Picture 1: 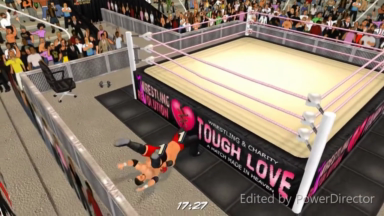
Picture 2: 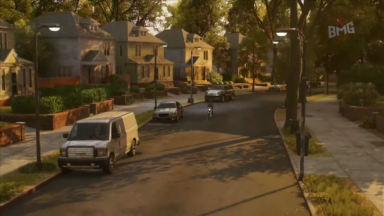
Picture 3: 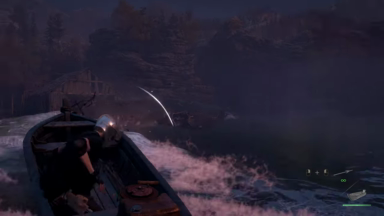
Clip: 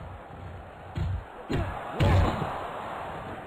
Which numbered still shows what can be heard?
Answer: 1